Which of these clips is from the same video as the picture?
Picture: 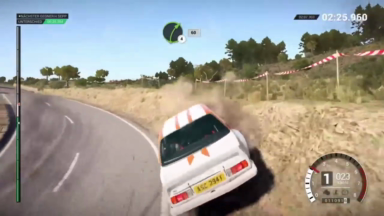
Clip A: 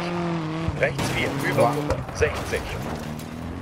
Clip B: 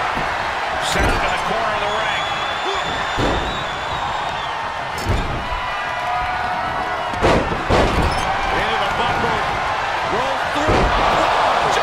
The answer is A